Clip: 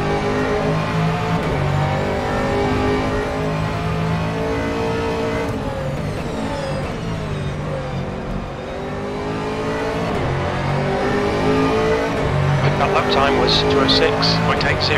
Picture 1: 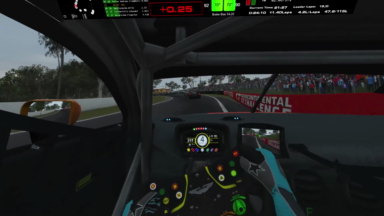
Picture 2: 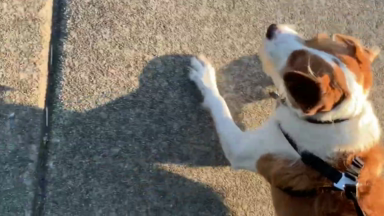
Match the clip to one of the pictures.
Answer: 1